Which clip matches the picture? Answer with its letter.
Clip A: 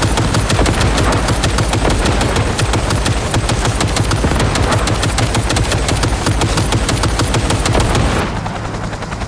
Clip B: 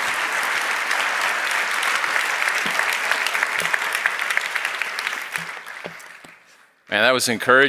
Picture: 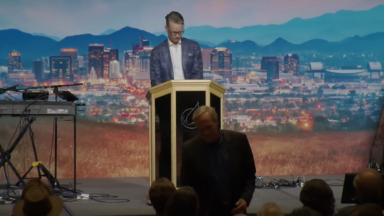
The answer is B